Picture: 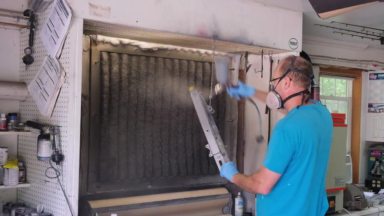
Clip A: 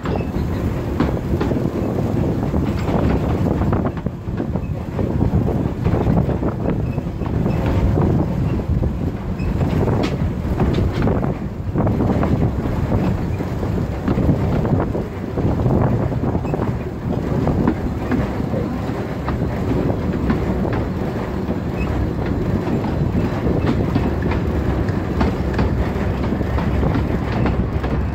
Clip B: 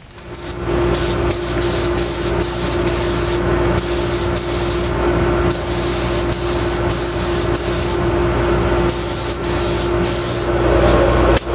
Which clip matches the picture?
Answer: B